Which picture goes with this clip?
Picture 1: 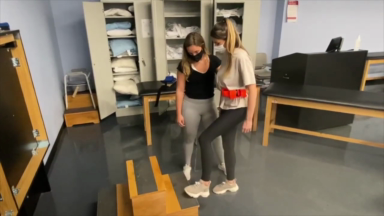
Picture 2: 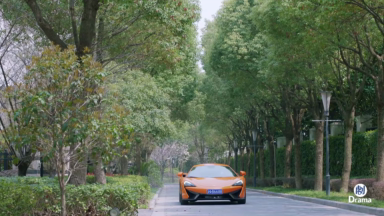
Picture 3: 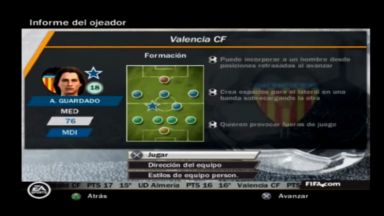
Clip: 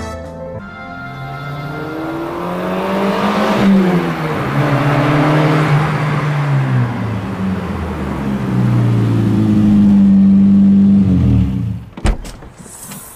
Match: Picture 2